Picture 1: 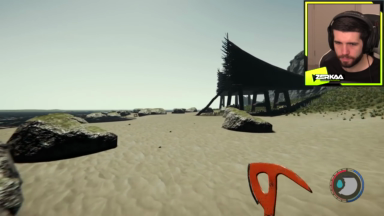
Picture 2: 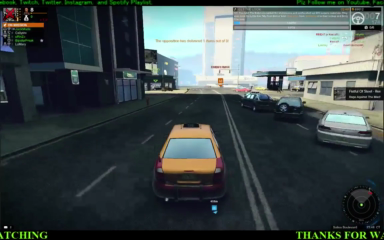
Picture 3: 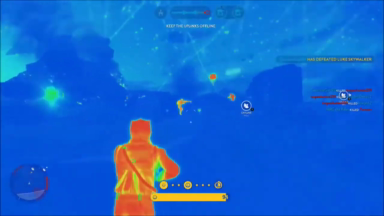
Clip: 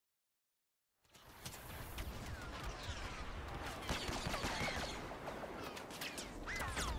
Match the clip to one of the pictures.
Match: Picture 3